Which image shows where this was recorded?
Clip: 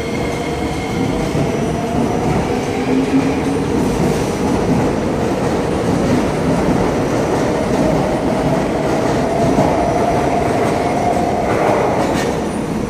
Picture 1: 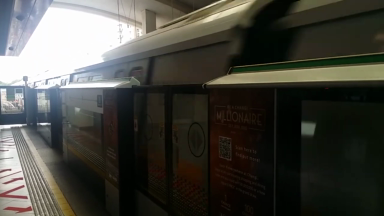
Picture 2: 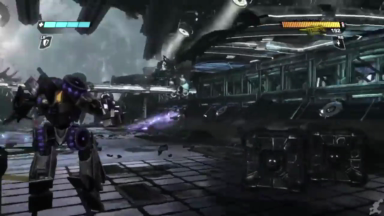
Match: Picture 1